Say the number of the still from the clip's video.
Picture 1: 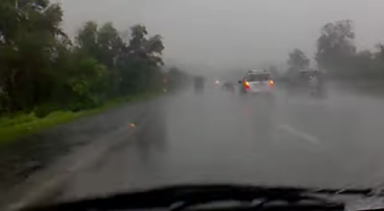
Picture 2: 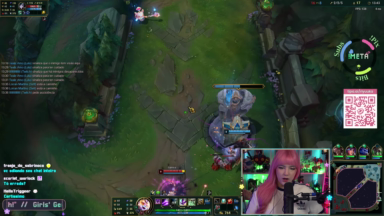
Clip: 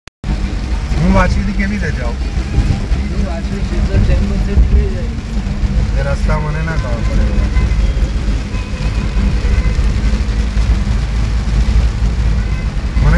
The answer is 1